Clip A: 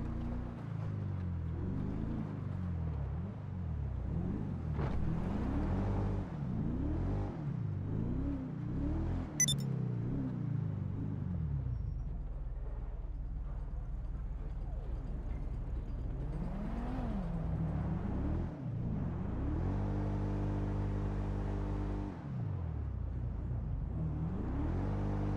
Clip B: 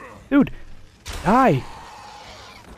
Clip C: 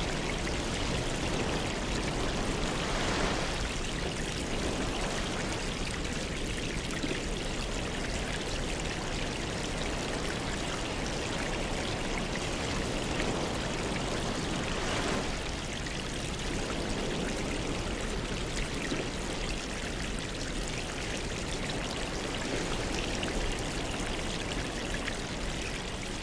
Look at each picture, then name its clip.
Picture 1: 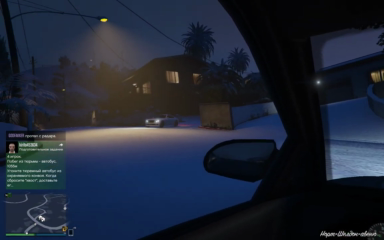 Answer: A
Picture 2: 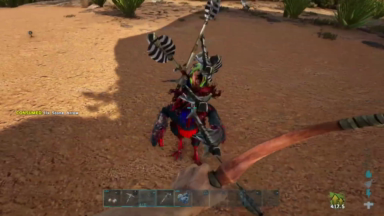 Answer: B